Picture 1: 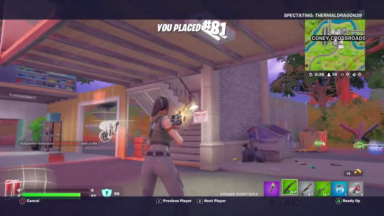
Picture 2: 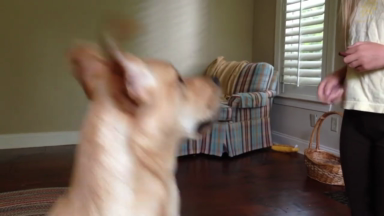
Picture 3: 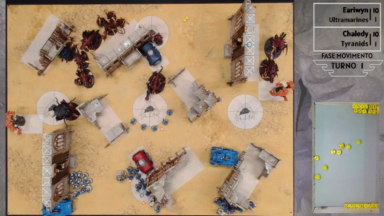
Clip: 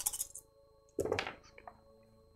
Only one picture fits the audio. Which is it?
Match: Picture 3